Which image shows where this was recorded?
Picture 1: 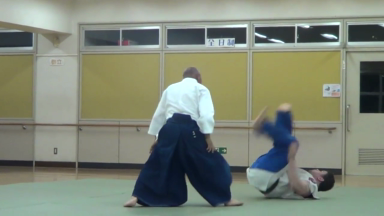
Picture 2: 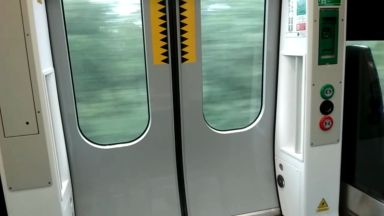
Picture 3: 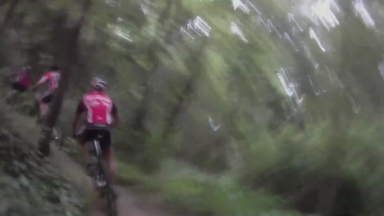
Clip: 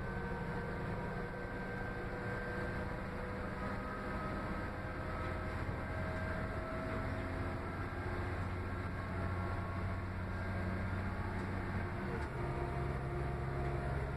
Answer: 2